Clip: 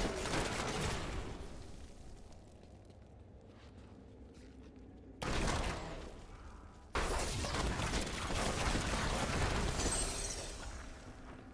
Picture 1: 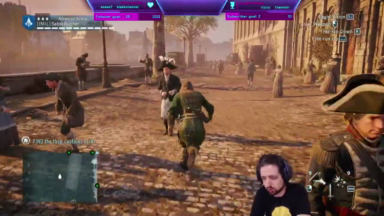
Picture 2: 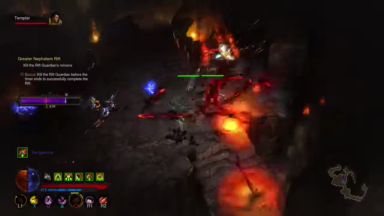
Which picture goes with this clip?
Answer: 2